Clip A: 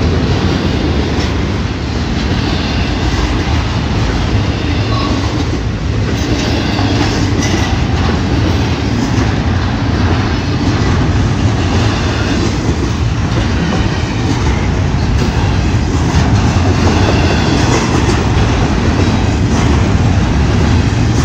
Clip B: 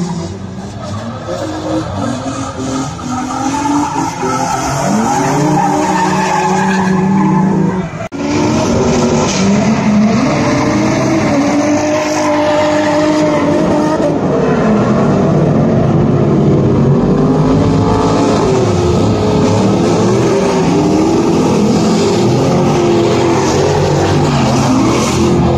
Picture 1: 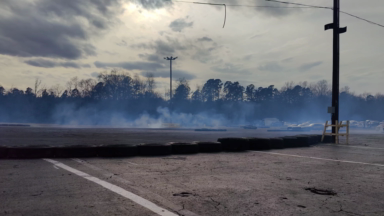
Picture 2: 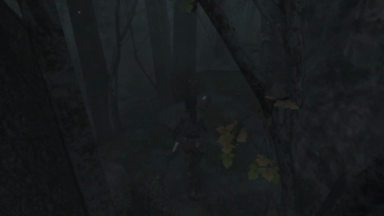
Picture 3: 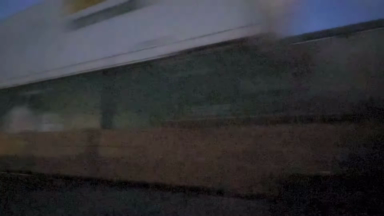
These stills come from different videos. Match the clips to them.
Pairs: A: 3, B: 1